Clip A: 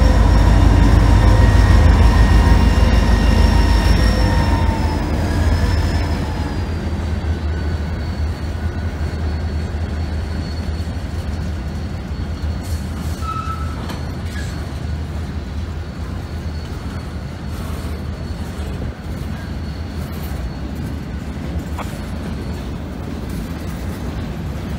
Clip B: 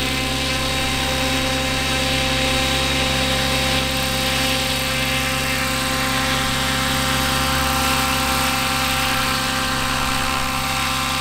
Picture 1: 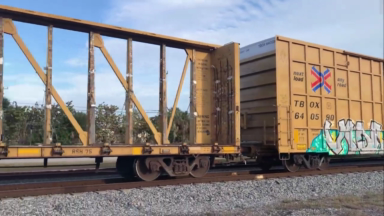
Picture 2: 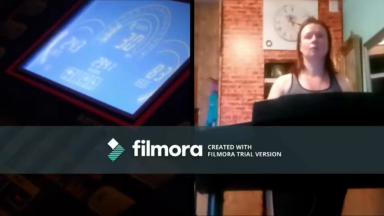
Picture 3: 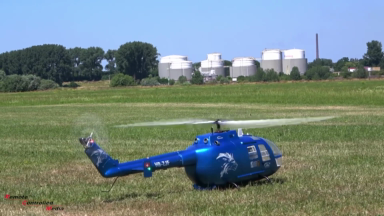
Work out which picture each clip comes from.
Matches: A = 1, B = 3